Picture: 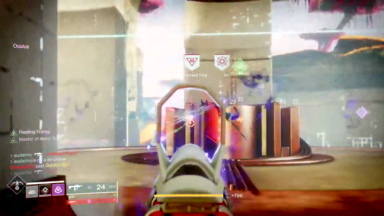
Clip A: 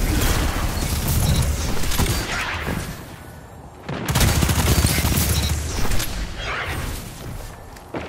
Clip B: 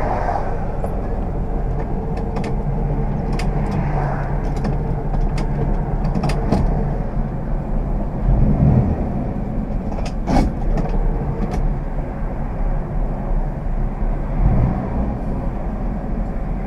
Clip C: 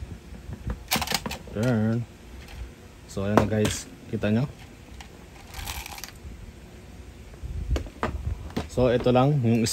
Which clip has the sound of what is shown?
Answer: A